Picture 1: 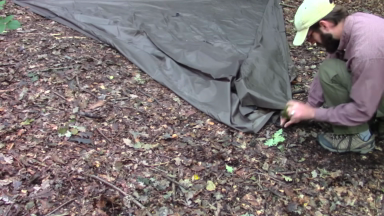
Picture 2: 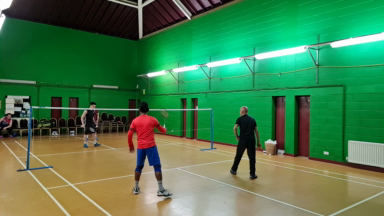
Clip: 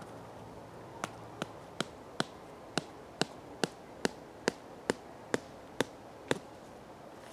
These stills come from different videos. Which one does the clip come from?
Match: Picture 1